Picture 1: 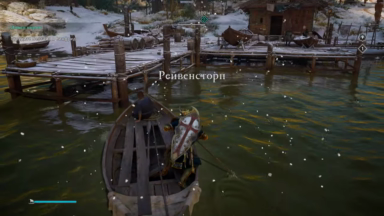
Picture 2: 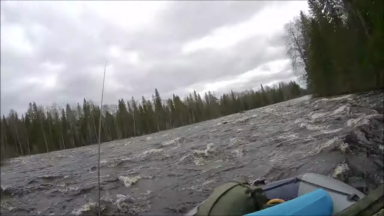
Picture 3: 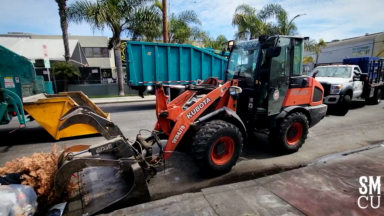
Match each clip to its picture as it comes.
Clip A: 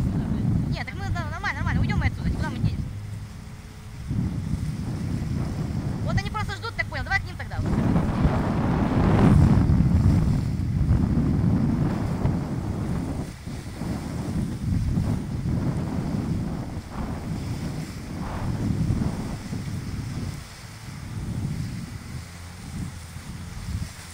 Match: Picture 2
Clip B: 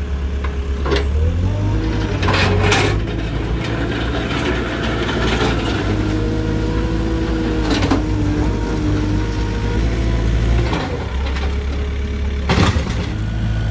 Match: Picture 3